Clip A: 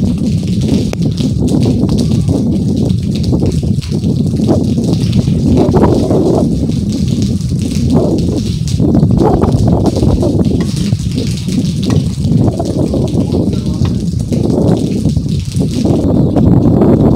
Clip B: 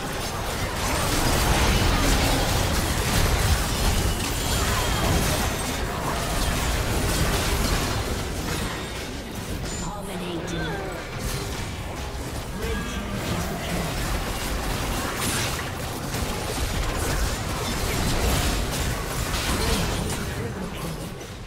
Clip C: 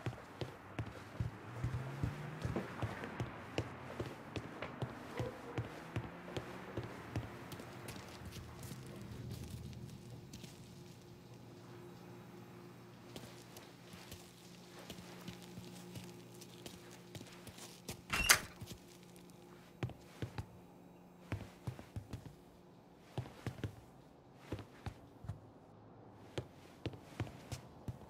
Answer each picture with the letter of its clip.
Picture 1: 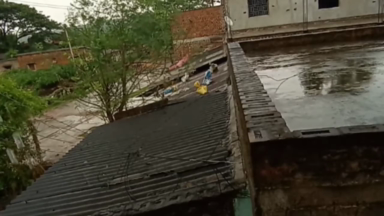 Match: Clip A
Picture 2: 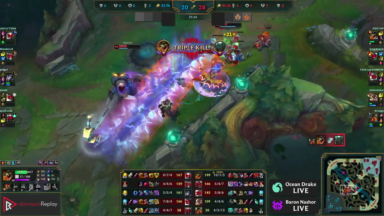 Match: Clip B